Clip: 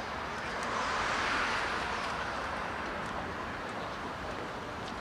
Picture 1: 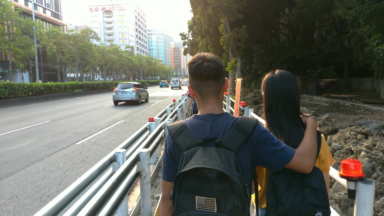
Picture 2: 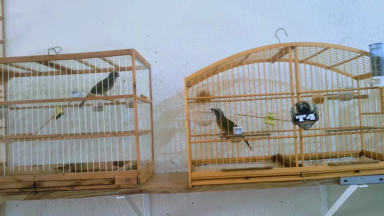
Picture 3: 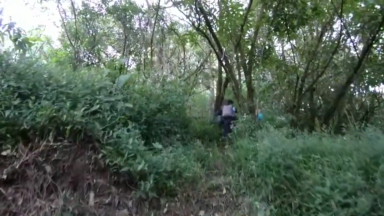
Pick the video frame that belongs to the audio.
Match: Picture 1